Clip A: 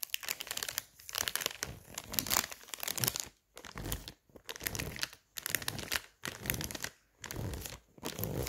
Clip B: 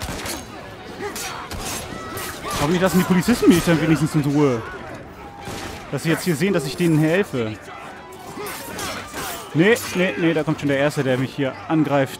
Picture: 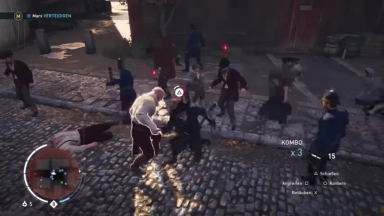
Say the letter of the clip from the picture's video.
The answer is B